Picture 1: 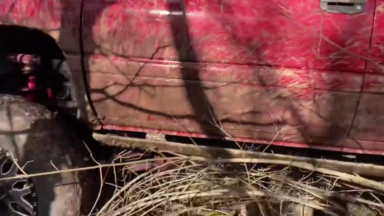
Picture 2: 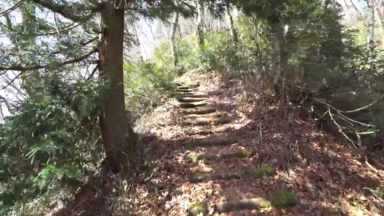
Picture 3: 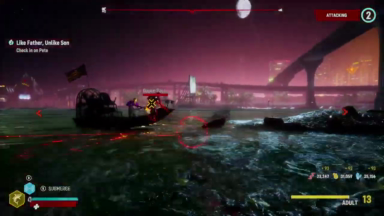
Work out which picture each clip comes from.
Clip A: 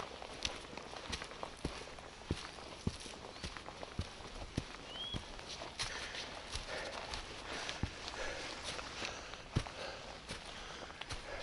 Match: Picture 2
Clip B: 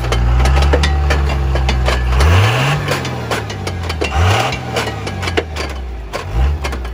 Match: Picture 1